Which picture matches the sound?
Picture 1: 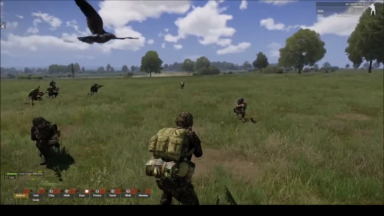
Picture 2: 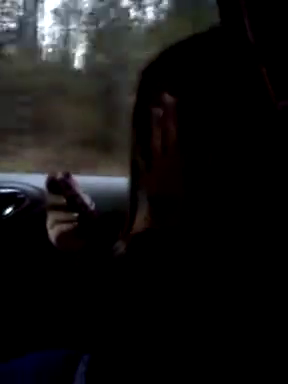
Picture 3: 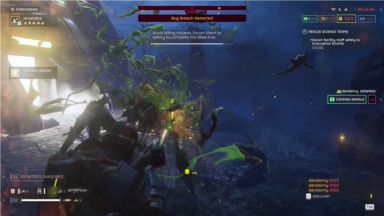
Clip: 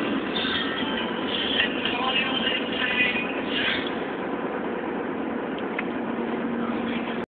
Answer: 2